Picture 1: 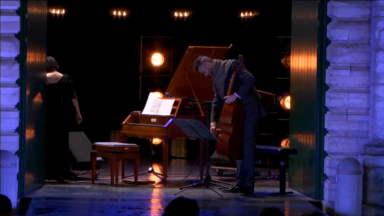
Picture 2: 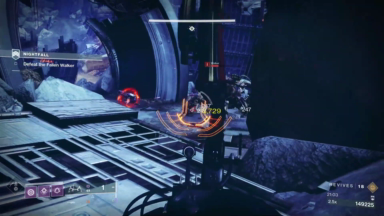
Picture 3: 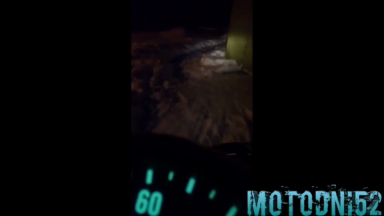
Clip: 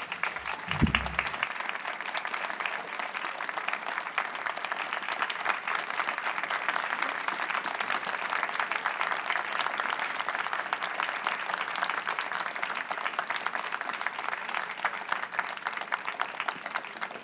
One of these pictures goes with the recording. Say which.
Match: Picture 1